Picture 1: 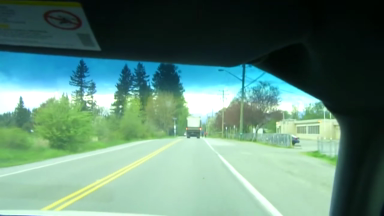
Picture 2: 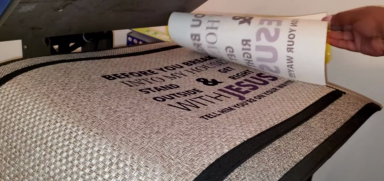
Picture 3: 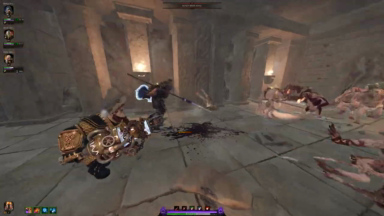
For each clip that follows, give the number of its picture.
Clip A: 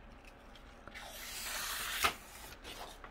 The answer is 2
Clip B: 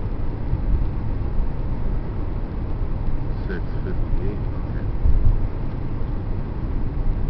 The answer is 1